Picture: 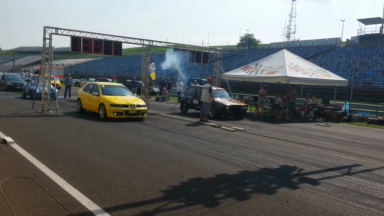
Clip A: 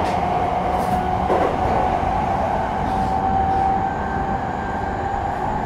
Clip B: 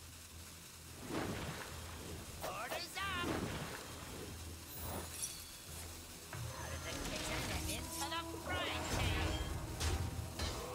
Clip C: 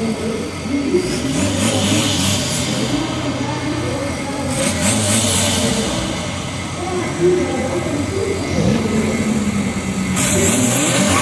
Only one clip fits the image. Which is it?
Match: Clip C